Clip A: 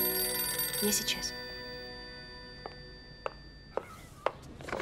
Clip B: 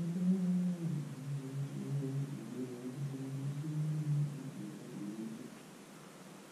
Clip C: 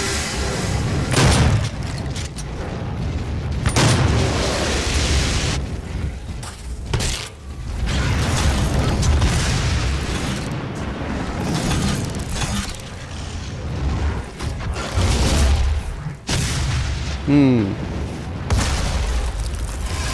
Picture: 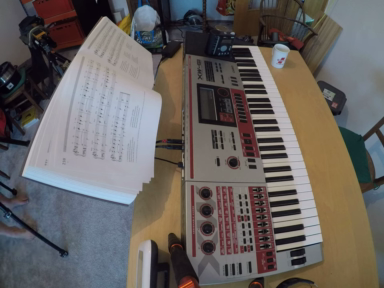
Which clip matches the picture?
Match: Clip B